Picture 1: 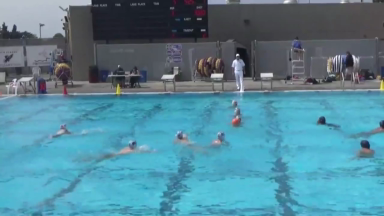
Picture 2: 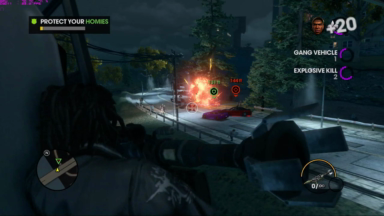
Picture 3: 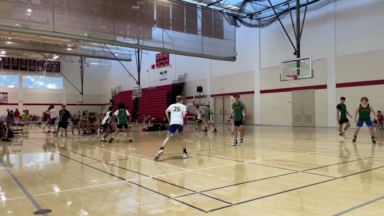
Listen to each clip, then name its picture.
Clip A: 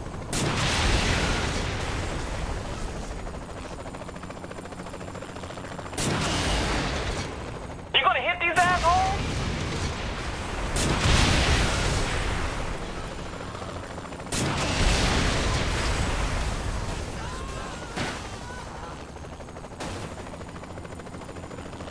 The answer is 2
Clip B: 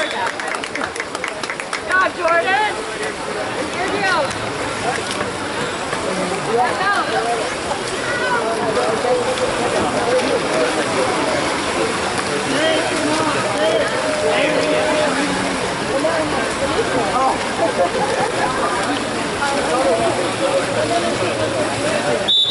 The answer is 1